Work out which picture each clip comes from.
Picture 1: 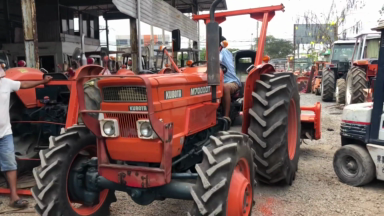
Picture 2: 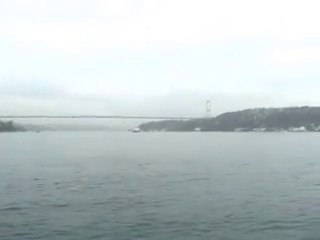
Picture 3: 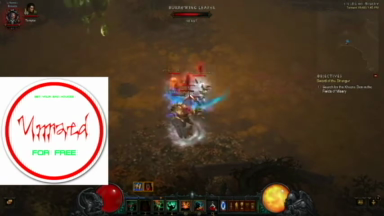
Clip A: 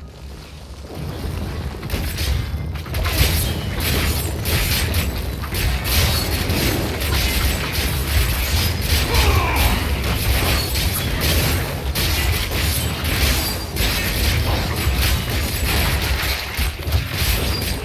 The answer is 3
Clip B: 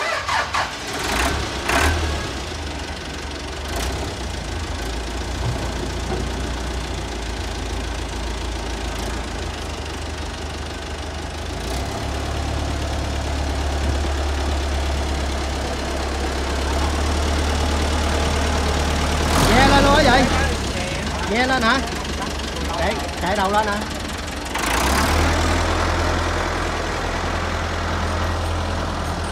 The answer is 1